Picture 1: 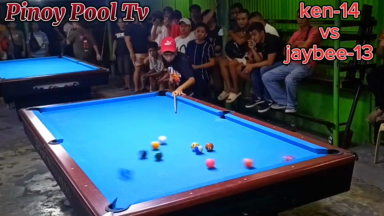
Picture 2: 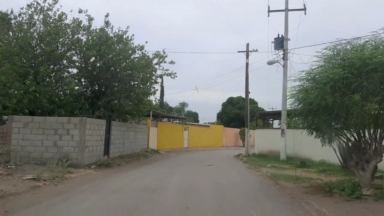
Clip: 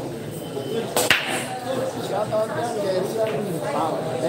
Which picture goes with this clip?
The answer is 1